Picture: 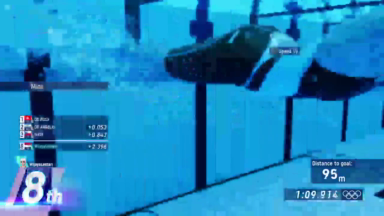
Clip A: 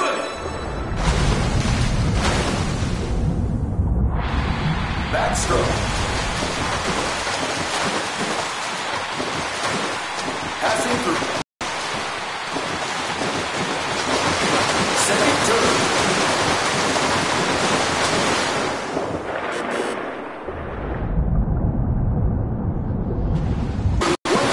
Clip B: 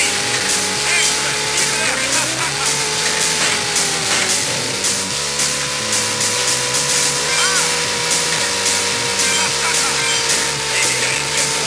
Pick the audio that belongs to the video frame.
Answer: A